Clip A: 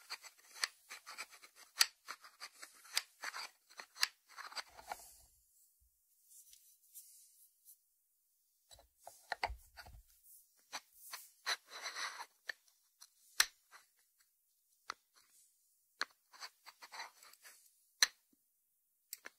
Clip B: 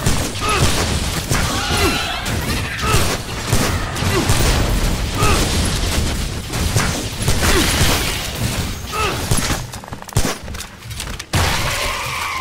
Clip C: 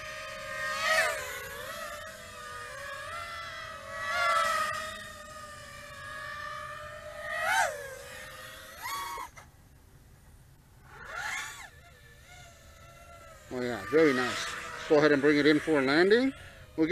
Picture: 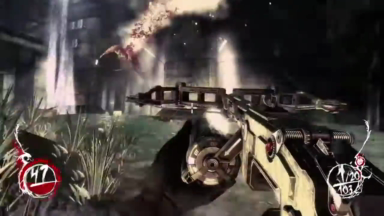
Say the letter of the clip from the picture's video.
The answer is B